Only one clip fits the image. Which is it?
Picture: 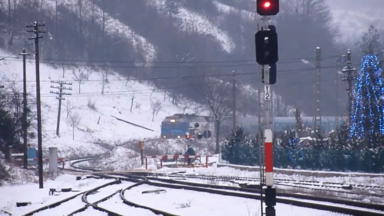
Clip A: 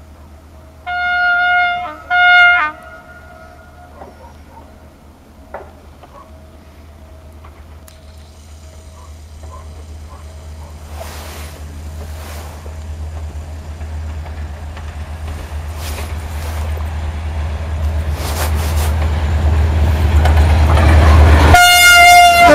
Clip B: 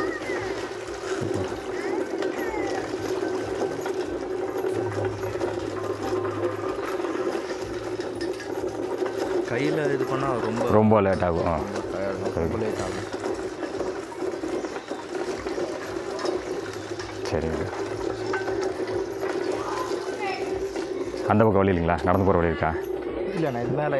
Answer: A